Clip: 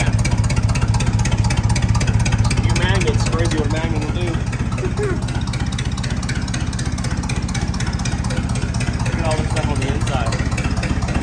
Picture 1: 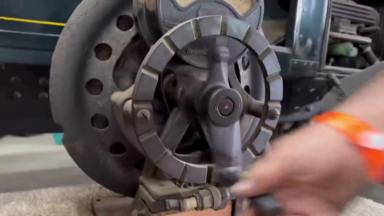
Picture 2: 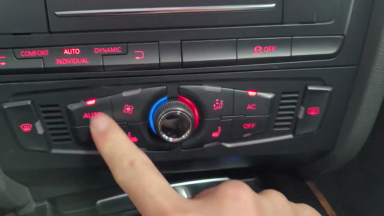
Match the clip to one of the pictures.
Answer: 1